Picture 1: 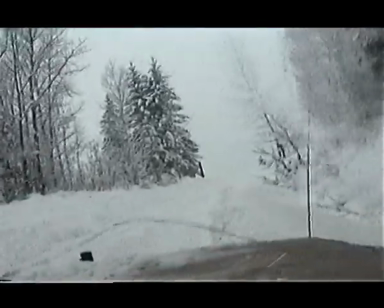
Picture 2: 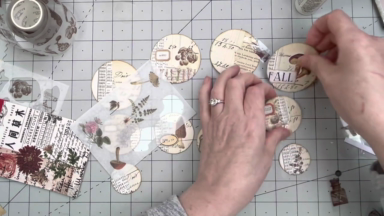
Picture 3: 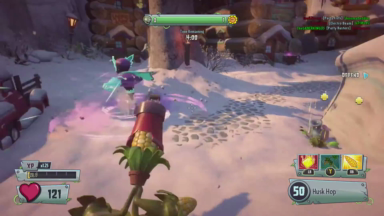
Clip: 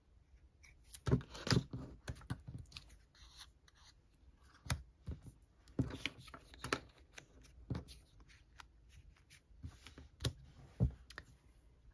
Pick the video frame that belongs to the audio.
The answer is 2